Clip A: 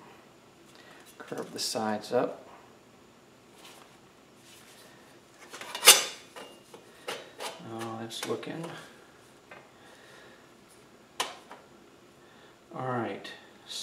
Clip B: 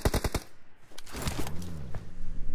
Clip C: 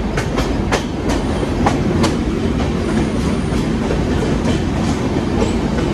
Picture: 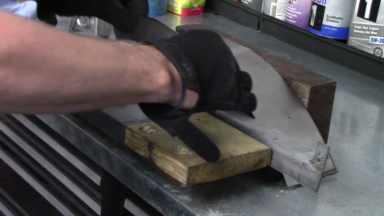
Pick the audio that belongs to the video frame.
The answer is A